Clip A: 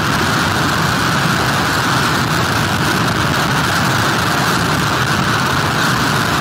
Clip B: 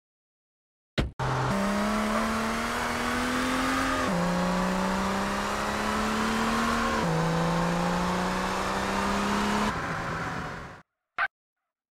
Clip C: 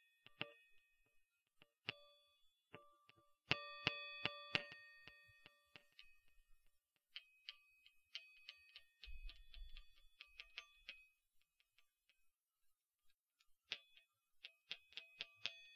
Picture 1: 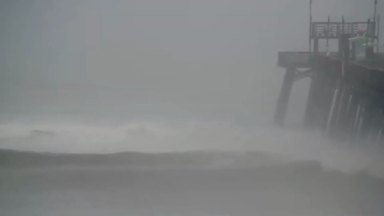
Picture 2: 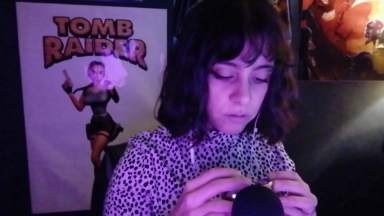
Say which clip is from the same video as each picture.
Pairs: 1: A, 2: C